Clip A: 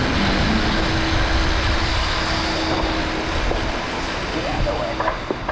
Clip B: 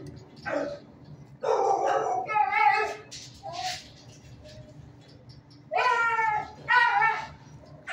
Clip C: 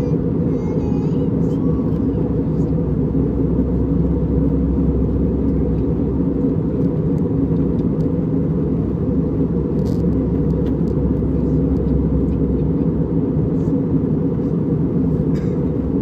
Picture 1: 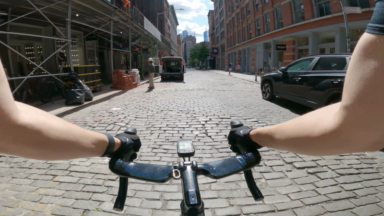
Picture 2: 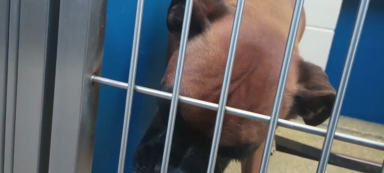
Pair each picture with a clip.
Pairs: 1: A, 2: B